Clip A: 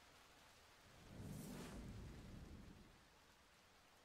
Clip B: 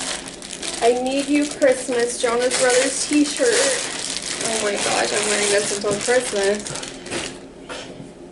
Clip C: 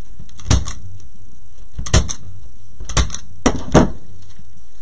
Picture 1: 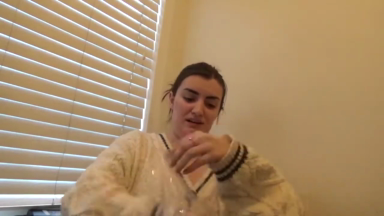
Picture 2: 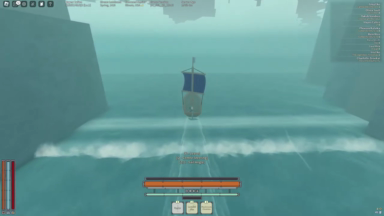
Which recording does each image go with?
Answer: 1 B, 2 A